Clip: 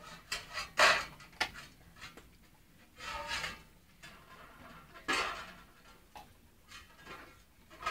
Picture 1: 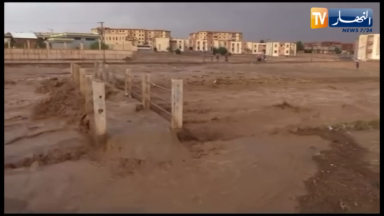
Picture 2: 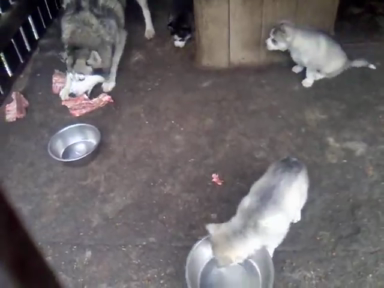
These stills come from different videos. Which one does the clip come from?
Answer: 2